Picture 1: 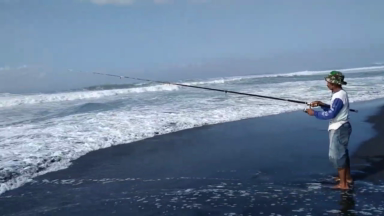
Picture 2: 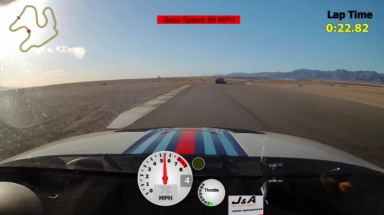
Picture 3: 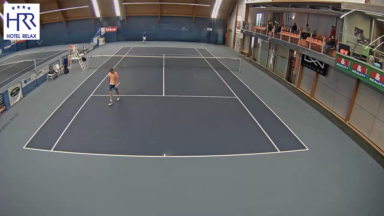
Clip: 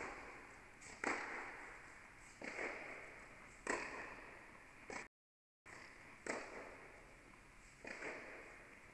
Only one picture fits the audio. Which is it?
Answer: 3